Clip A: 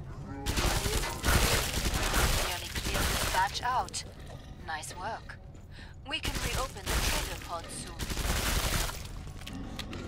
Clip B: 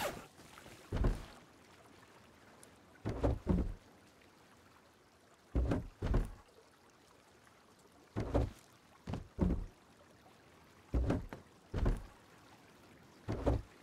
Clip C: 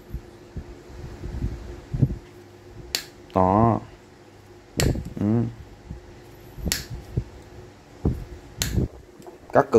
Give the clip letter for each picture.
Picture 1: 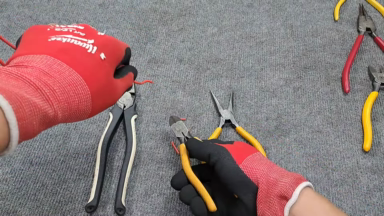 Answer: C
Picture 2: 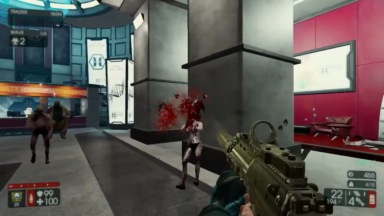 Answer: A